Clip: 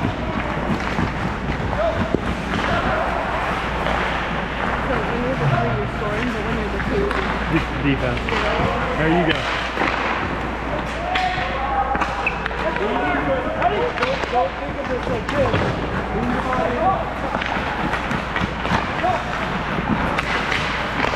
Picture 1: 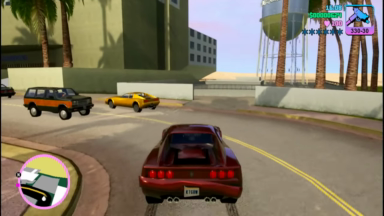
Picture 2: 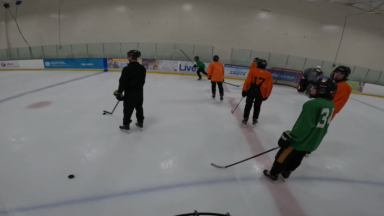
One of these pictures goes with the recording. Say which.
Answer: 2